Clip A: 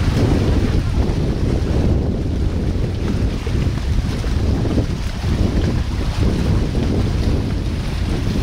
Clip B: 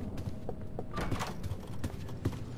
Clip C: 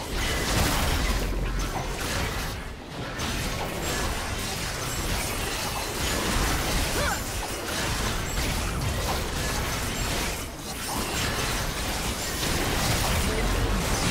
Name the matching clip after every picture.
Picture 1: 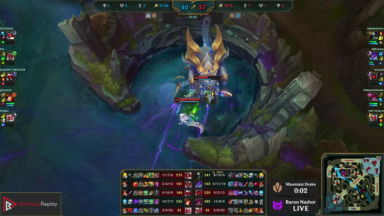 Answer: C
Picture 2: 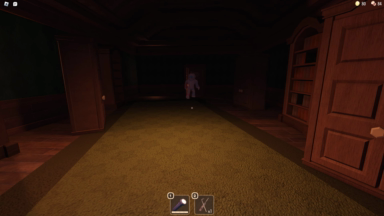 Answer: B